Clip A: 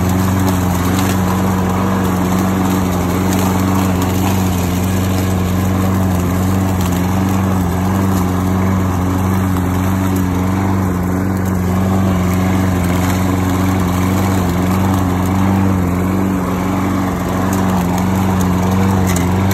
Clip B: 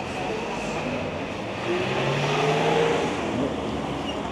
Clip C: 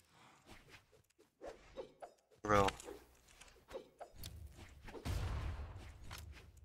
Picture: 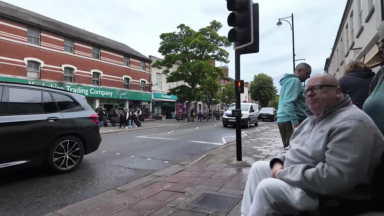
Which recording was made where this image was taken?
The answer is B